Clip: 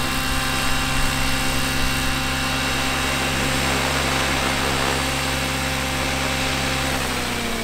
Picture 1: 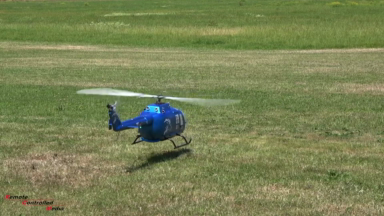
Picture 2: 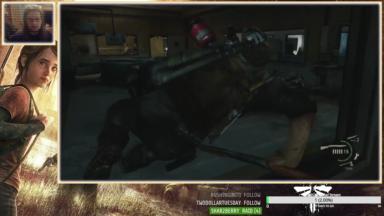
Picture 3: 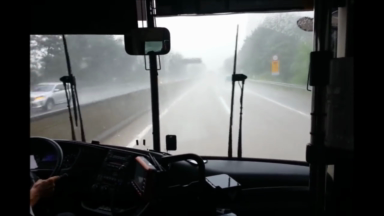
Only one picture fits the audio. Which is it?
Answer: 1